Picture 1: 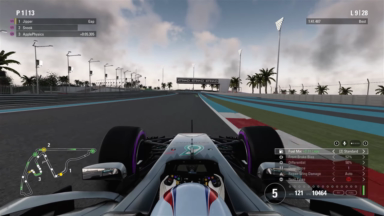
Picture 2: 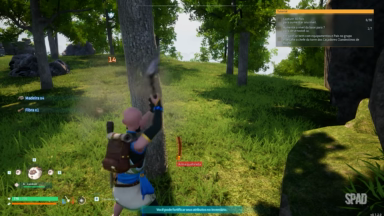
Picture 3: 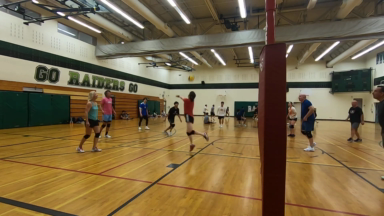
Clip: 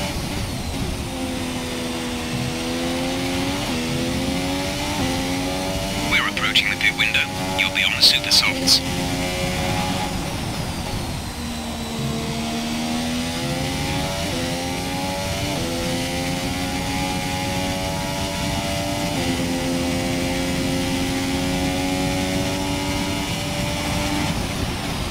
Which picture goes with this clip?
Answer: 1